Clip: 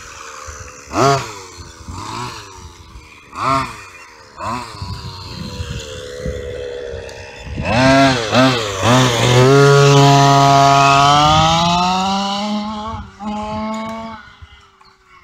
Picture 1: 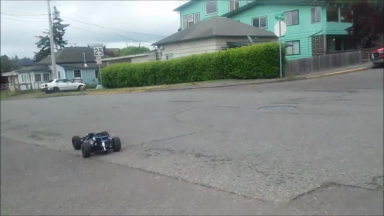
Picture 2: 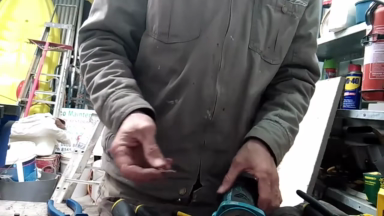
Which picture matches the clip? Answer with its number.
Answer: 1